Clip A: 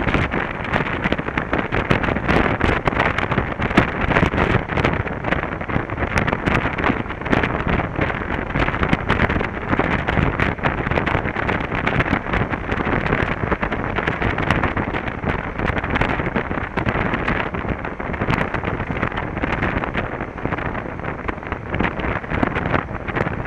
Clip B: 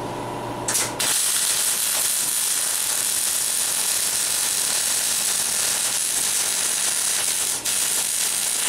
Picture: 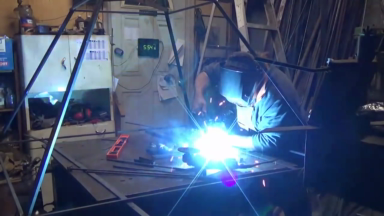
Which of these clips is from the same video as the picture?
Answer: B